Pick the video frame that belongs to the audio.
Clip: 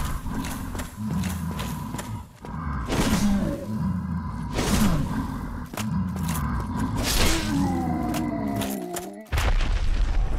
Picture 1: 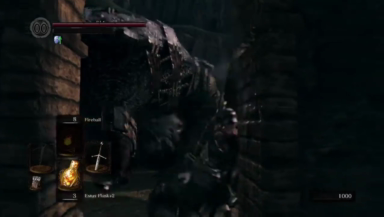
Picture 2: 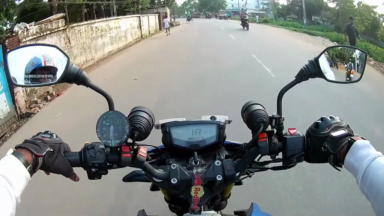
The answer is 1